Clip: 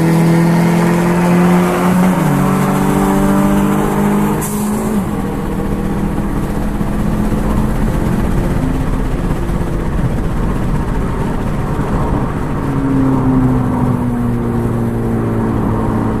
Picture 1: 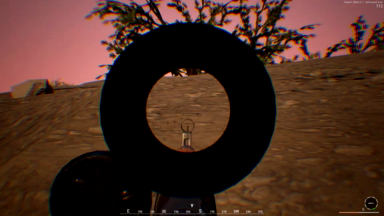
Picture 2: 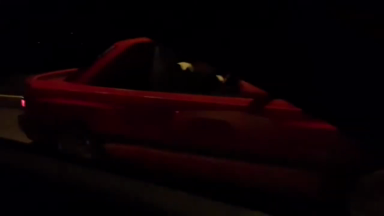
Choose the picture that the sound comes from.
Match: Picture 2